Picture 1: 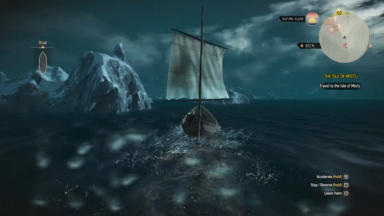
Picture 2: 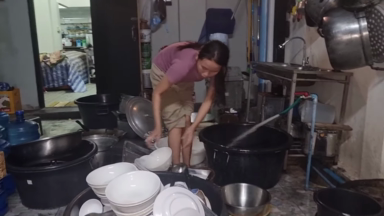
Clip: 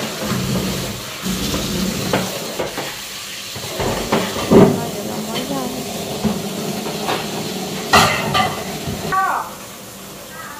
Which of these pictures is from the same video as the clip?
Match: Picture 2